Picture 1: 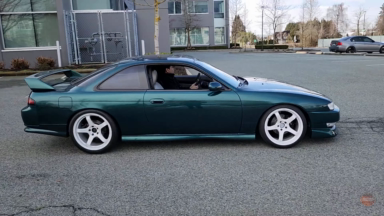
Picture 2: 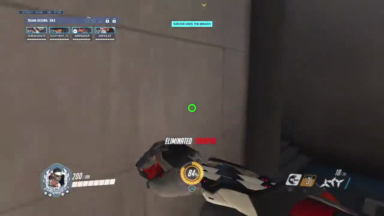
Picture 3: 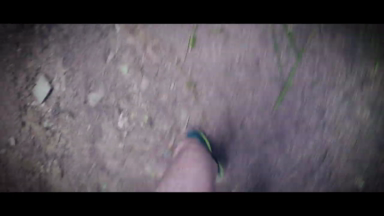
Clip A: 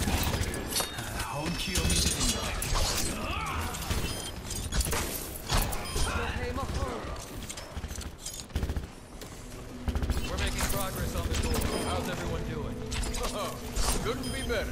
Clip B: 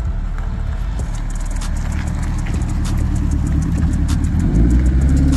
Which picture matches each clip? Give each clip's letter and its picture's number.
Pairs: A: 2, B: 1